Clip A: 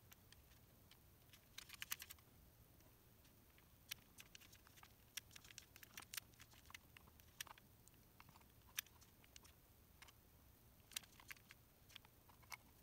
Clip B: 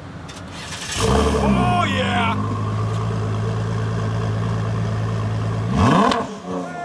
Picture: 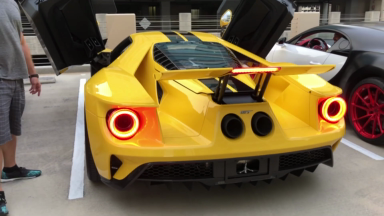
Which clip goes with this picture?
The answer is B